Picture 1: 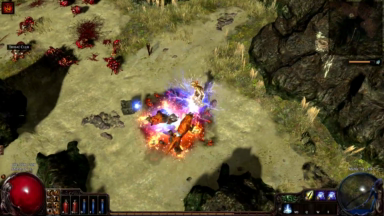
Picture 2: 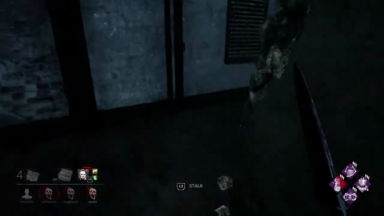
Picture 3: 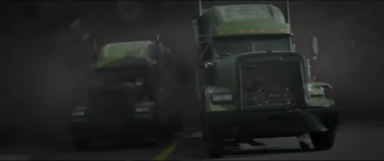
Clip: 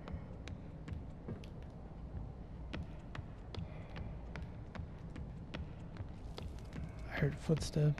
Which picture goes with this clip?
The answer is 2